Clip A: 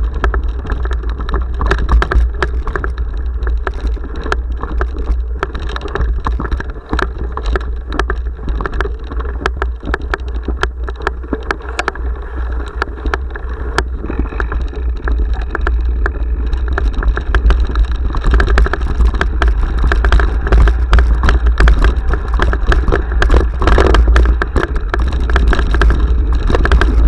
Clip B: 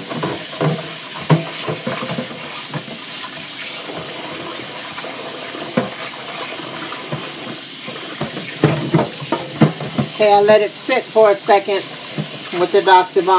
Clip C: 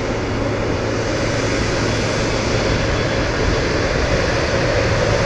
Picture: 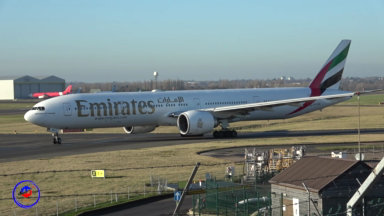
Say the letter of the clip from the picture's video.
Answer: C